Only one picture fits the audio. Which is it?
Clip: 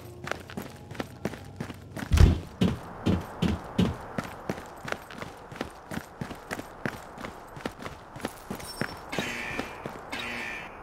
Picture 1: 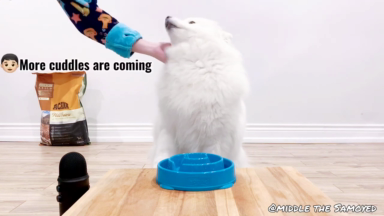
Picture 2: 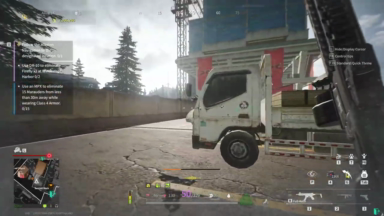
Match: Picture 2